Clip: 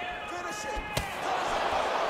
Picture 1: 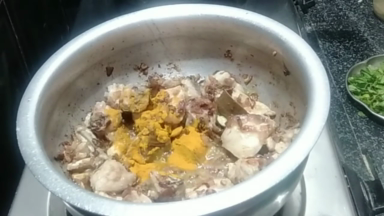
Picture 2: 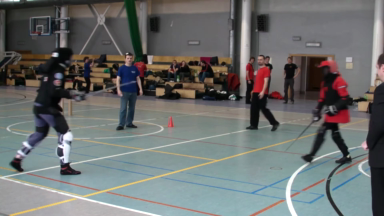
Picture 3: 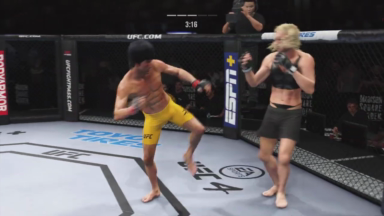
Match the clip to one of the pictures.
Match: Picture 3